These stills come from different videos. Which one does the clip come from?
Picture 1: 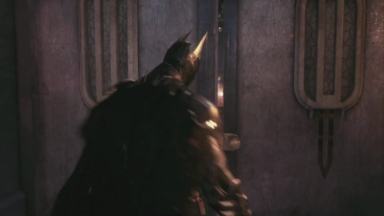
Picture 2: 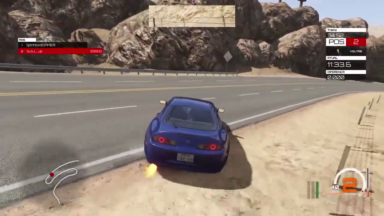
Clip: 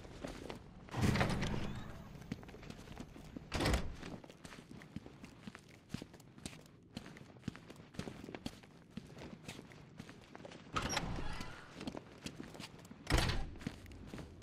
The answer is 1